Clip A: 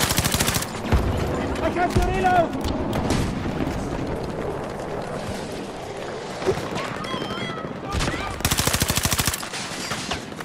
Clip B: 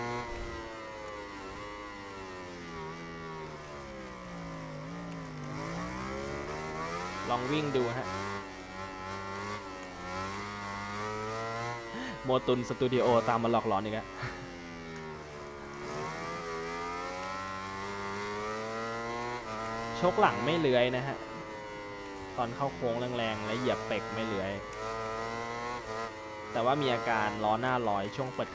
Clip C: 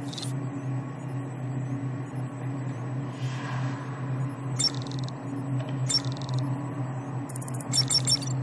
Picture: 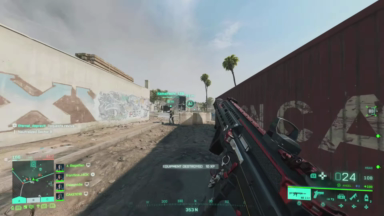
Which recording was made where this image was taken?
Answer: A